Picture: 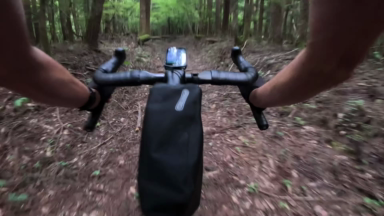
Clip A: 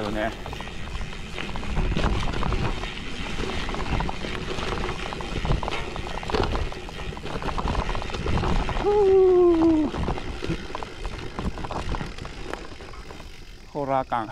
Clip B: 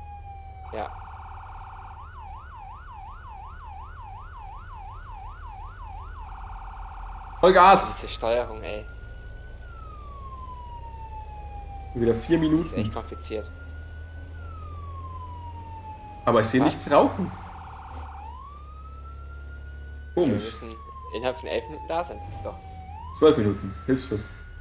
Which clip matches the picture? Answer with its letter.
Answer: A